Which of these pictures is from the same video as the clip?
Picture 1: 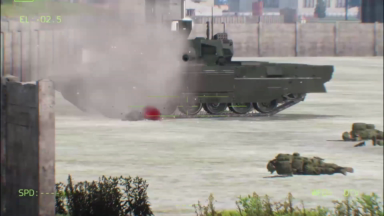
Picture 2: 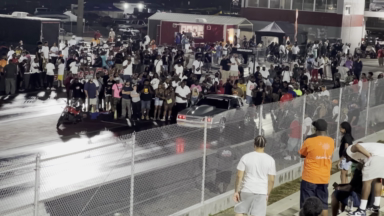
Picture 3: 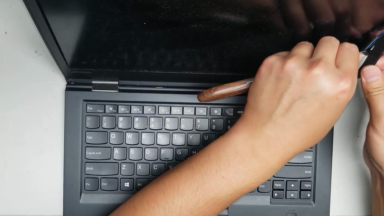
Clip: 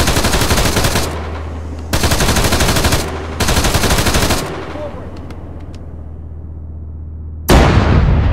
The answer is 1